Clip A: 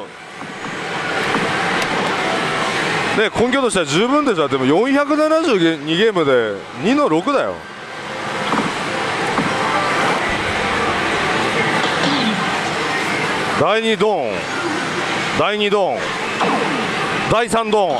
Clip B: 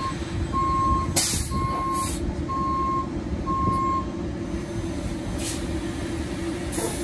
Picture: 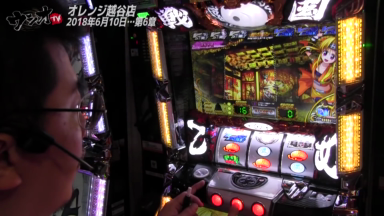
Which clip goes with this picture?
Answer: A